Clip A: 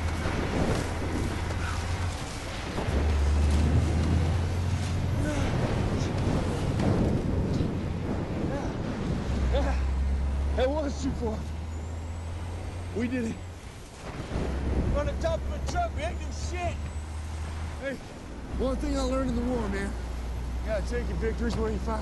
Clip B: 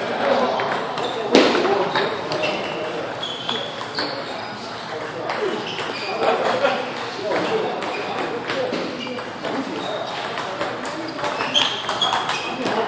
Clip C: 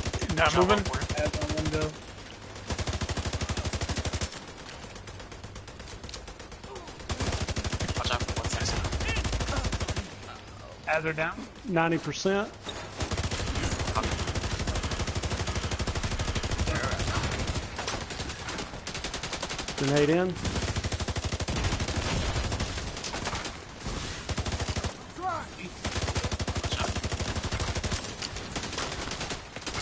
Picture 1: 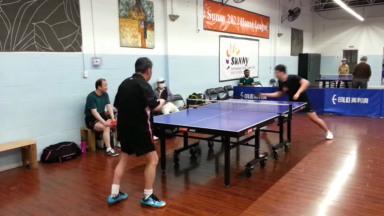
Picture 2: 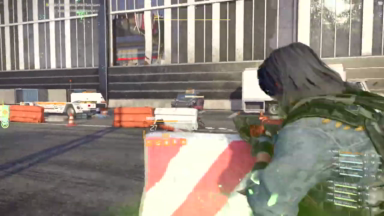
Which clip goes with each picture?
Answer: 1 B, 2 C